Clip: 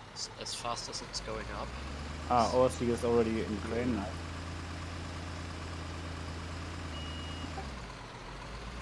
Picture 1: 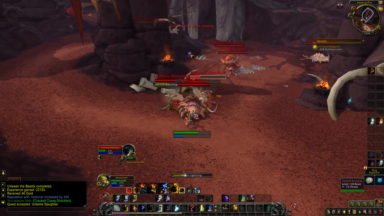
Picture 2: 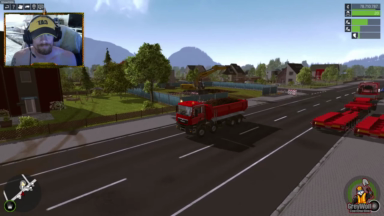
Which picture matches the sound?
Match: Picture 2